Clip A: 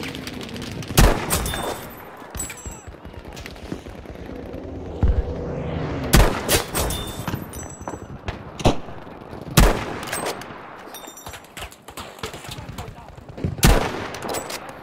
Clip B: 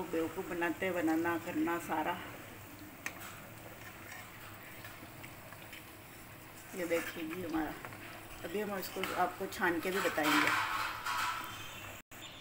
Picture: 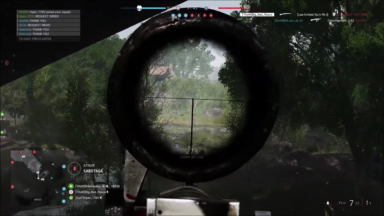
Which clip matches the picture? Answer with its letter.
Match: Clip A